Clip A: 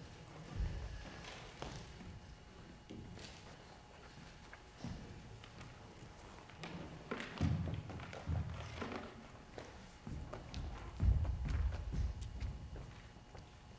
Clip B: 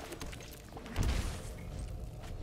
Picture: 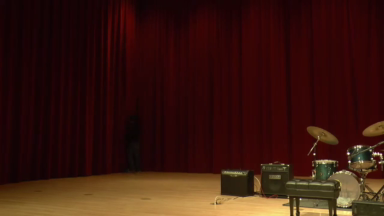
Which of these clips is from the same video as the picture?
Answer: A